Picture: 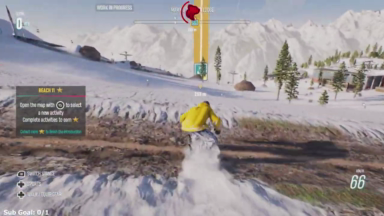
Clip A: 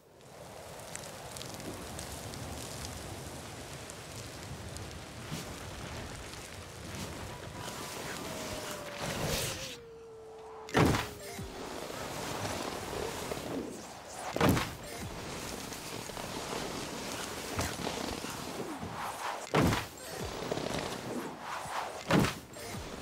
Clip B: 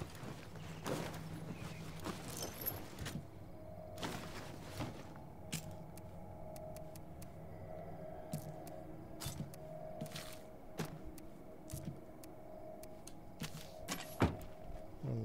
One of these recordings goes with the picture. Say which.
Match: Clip A